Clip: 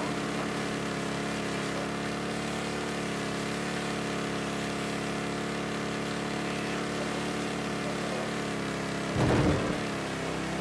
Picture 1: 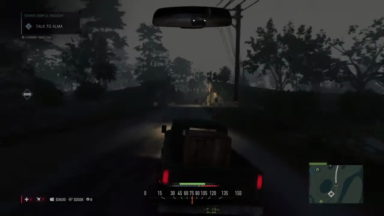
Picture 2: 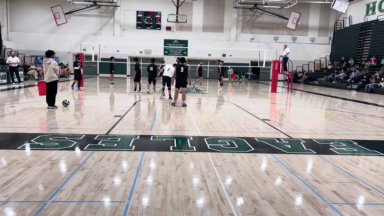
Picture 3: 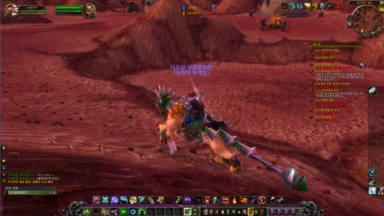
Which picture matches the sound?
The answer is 1